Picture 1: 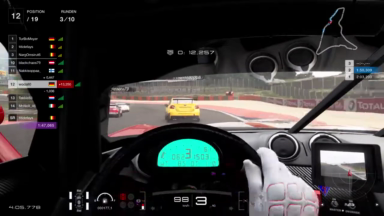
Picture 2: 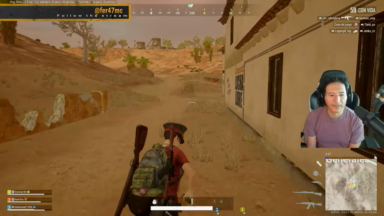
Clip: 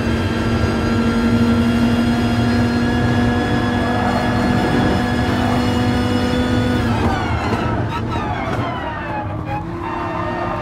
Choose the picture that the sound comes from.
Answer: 1